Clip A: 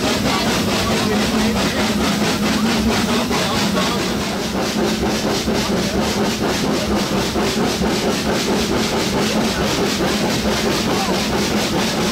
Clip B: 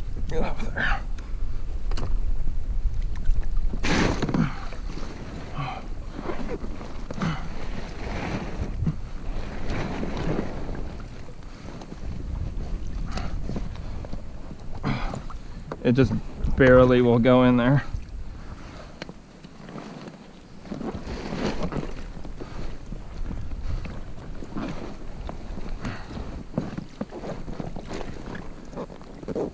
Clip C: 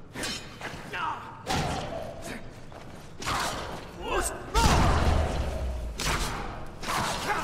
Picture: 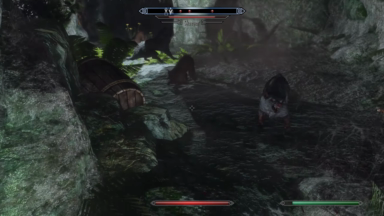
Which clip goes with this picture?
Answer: C